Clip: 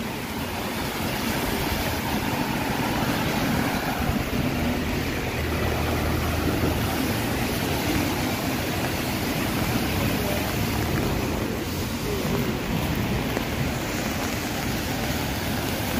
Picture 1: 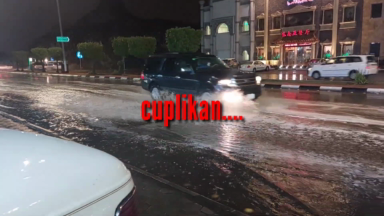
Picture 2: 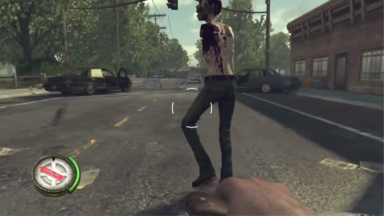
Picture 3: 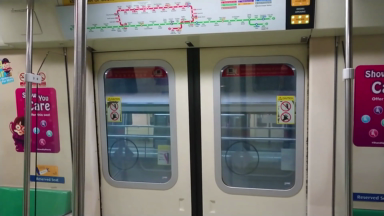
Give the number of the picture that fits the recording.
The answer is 1